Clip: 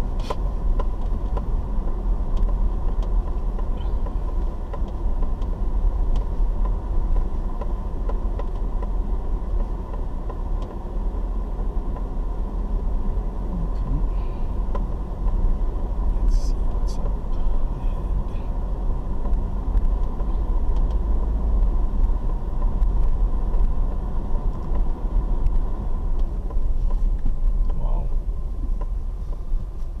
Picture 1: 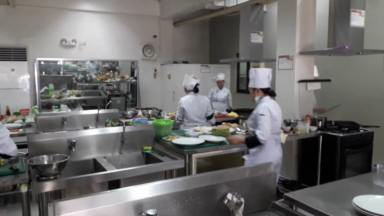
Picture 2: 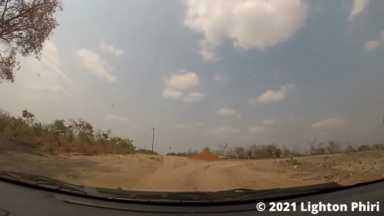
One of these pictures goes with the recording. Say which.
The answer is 2